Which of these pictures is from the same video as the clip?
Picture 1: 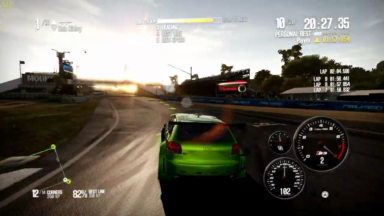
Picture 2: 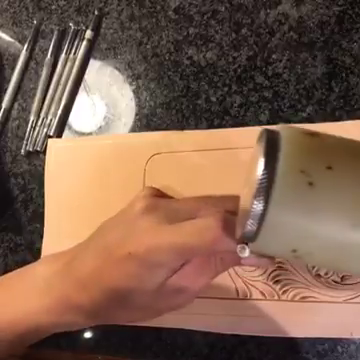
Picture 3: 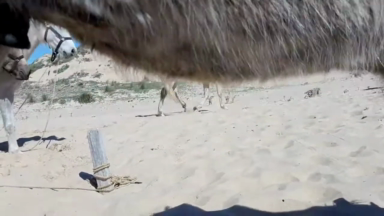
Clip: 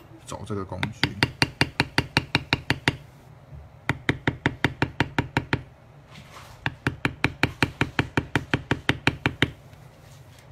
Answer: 2